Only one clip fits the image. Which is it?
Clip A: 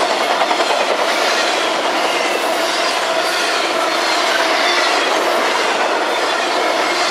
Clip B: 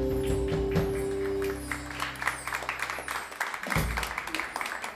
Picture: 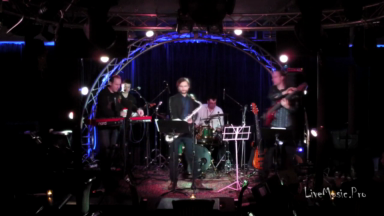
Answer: B